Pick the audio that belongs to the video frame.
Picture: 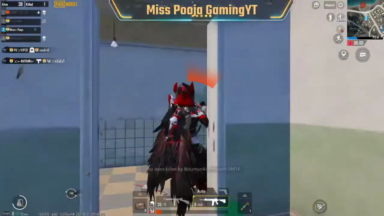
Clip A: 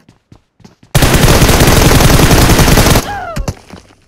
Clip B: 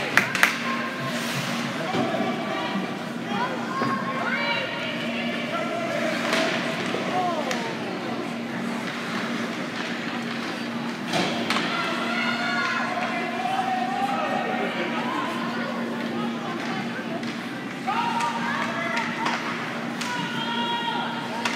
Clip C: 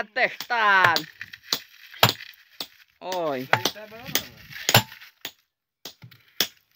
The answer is A